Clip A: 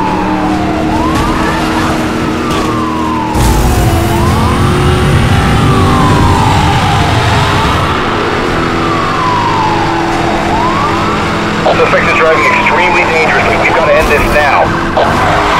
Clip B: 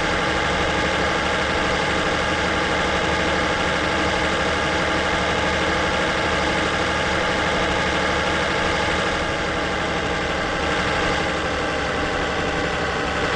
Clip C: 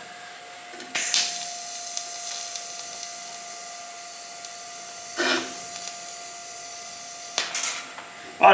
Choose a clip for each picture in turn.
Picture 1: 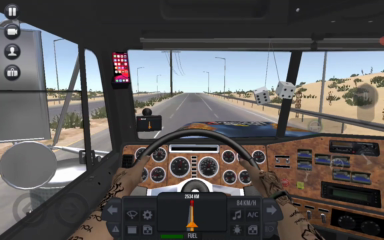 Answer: B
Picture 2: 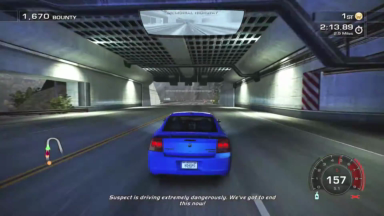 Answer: A